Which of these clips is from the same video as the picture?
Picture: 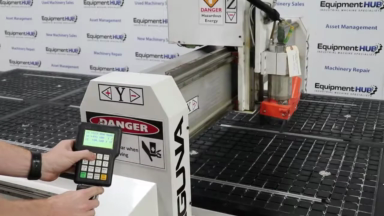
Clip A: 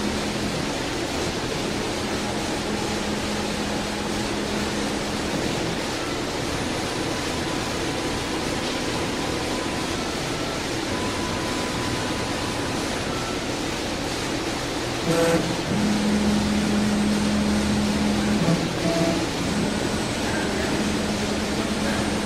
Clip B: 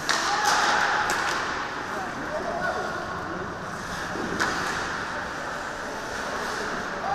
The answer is A